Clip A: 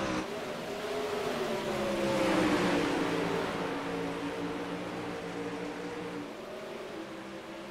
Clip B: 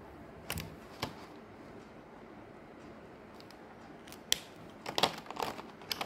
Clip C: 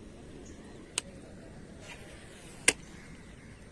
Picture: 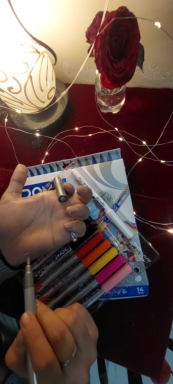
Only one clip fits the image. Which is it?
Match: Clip B